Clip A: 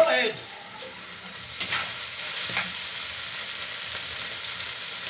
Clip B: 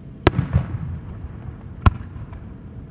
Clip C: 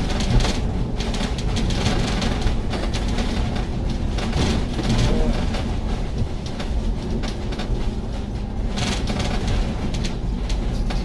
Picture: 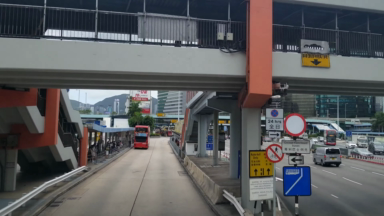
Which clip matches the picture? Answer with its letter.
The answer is C